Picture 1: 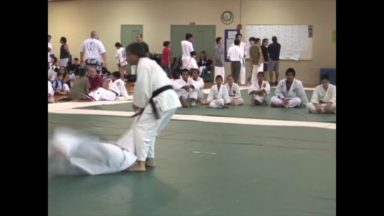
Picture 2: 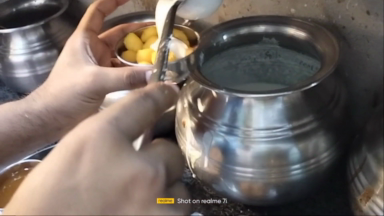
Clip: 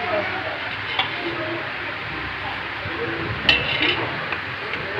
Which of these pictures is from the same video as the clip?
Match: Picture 2